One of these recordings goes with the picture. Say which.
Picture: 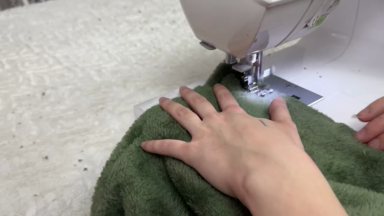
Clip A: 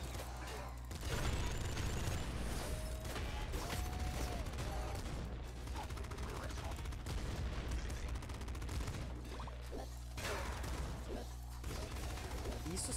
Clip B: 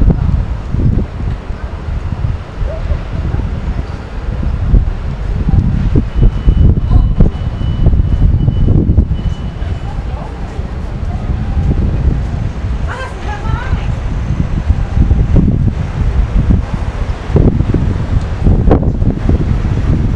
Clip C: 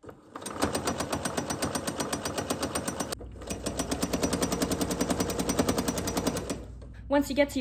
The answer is C